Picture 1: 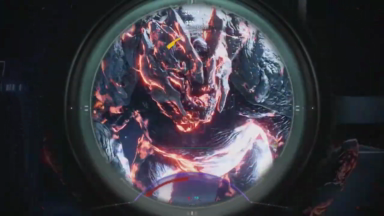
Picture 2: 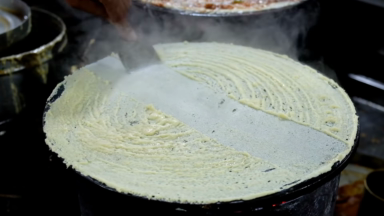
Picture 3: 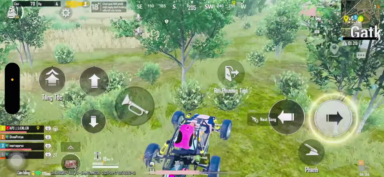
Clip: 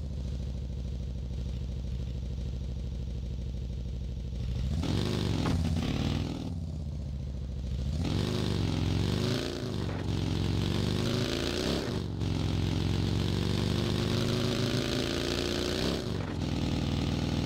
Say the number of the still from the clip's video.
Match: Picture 3